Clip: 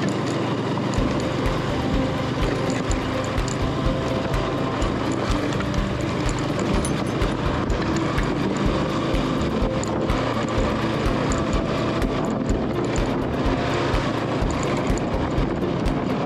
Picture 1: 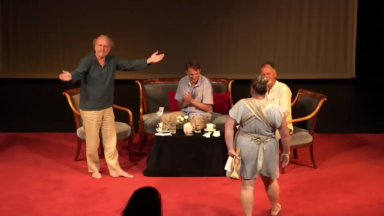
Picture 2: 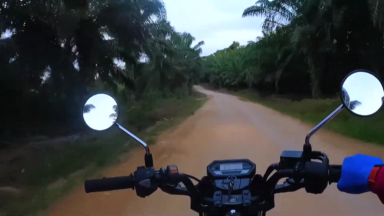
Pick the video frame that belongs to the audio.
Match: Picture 2